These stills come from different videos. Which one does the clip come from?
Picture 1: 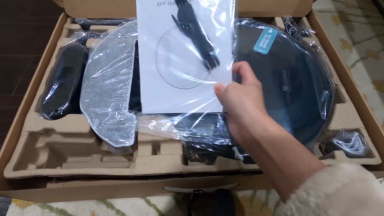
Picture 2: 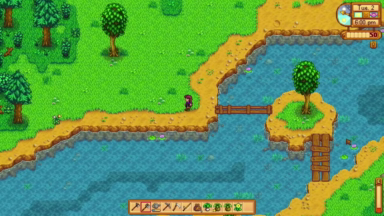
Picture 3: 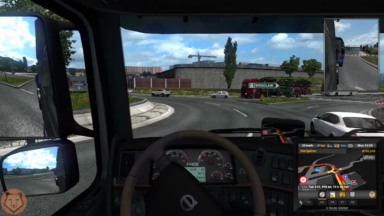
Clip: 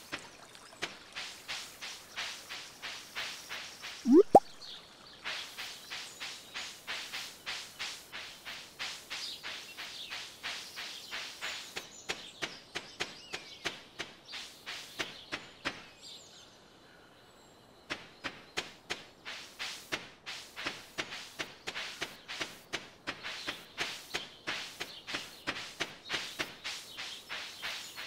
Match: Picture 2